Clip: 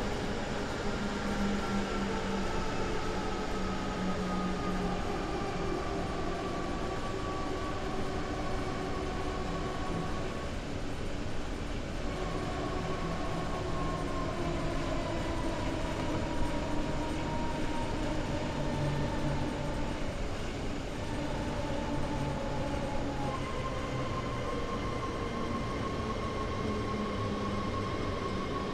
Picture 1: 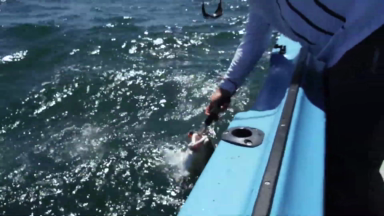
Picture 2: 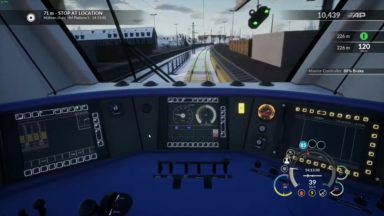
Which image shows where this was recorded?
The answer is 2